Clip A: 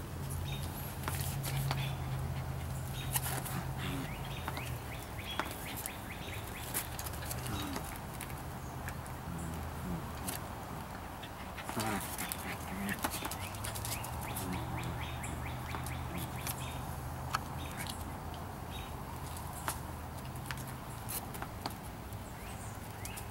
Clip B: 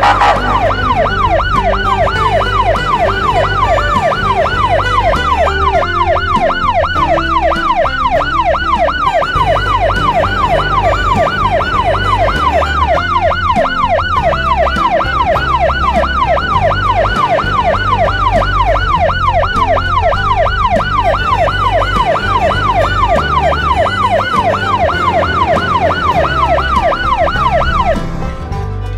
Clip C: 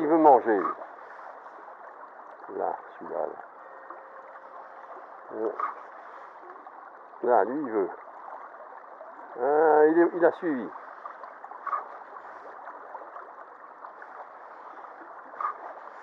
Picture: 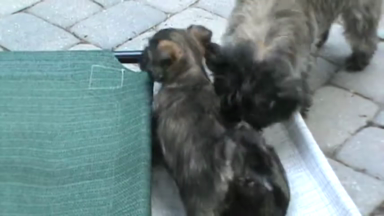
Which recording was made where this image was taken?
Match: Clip A